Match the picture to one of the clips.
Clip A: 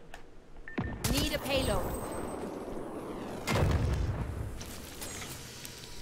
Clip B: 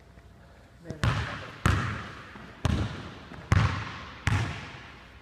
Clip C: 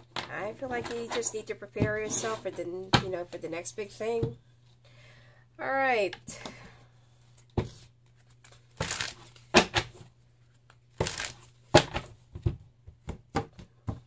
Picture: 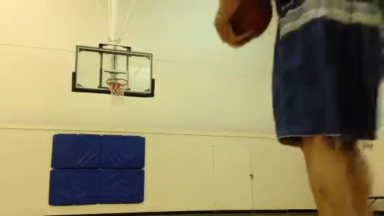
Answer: B